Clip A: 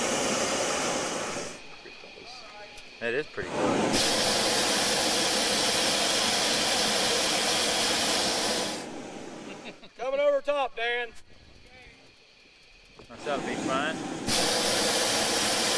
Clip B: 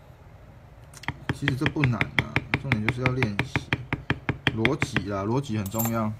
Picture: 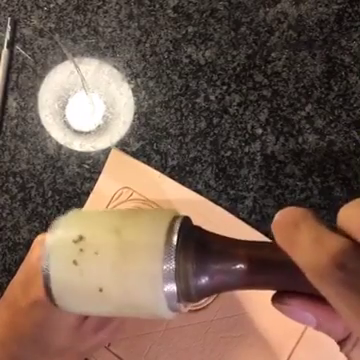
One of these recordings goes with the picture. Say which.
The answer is B